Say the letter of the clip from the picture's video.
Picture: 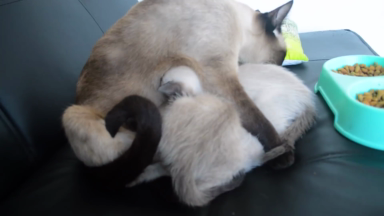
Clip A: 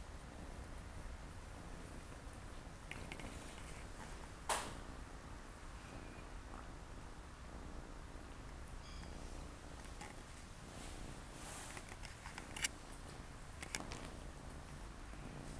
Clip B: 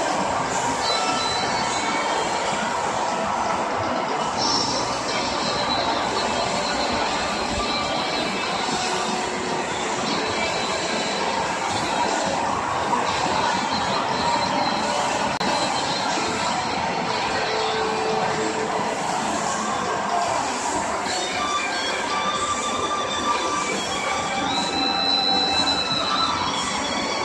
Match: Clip A